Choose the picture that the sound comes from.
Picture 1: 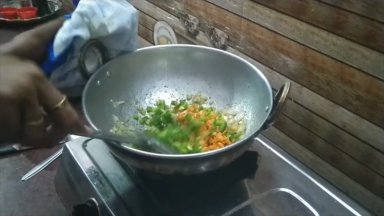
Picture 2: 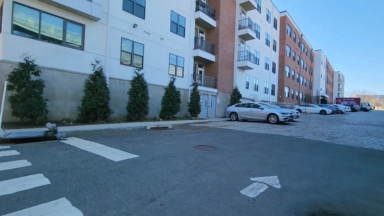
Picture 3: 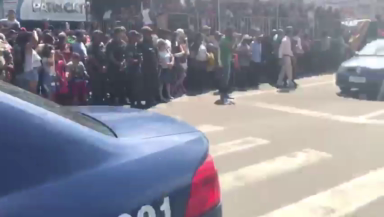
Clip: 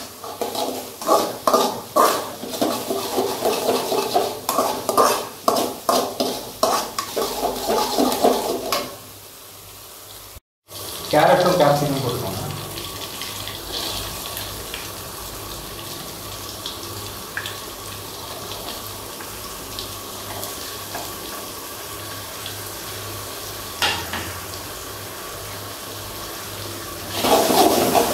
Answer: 1